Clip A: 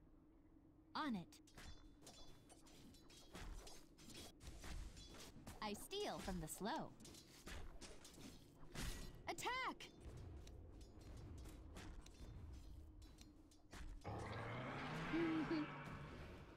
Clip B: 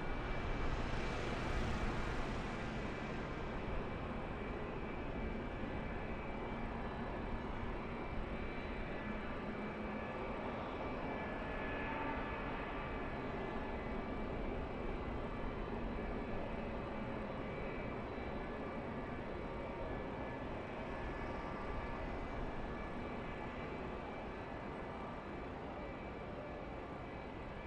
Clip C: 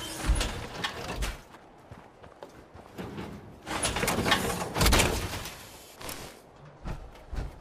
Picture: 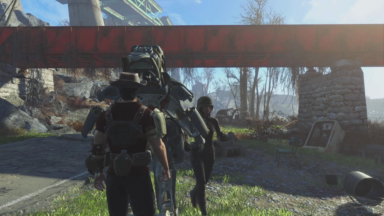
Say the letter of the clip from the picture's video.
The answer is C